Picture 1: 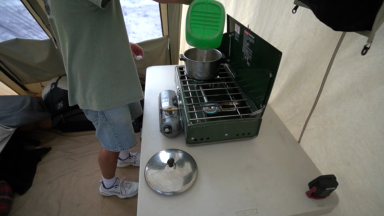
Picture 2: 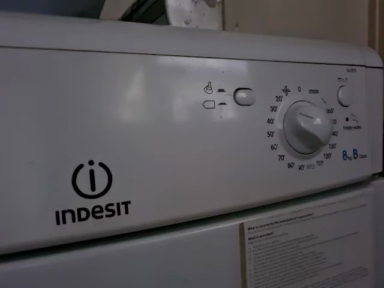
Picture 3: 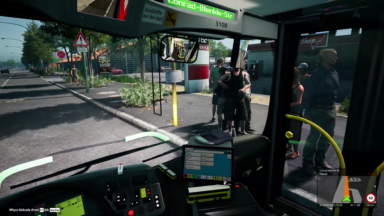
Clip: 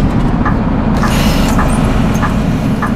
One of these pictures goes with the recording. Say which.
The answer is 3